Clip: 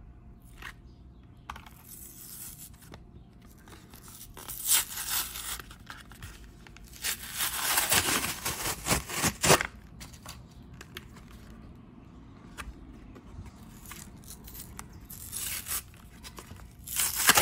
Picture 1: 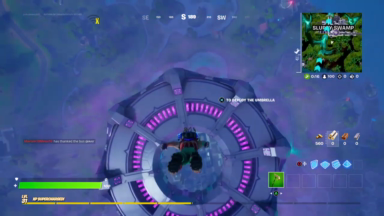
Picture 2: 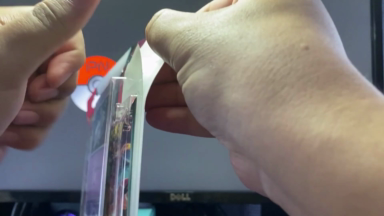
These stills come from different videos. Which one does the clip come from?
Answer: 2